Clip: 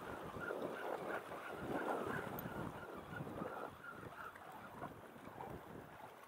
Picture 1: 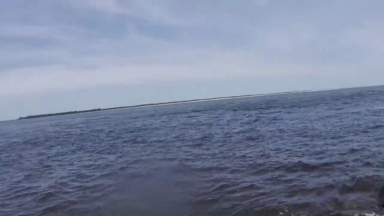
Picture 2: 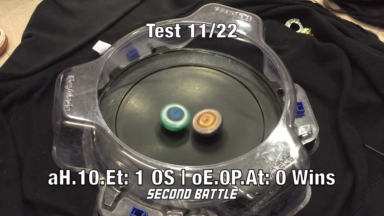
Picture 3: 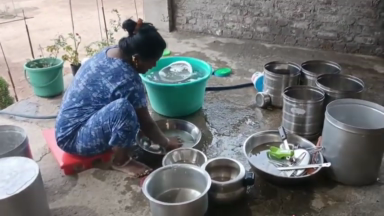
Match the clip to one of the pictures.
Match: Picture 1